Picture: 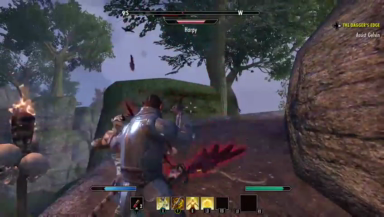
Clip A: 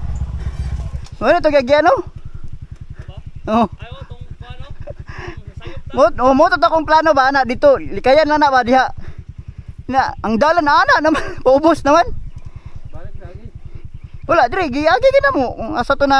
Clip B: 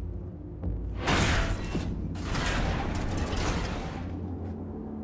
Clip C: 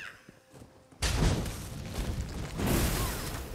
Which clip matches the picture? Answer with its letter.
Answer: C